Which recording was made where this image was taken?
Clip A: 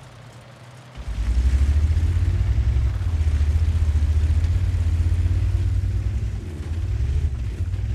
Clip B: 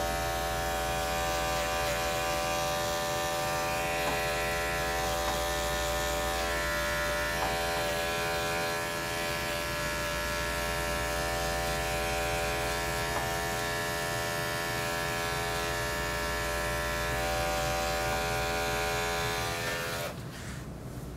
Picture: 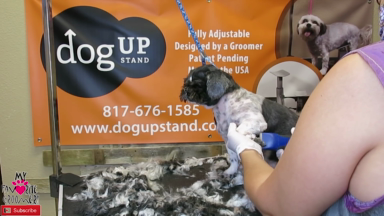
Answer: B